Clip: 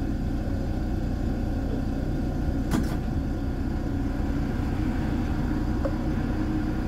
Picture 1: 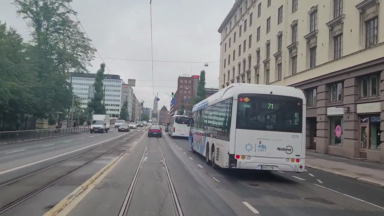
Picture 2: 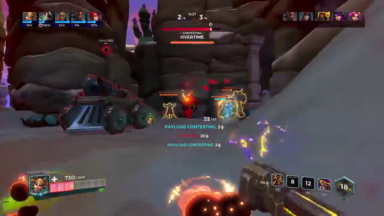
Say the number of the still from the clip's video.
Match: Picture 1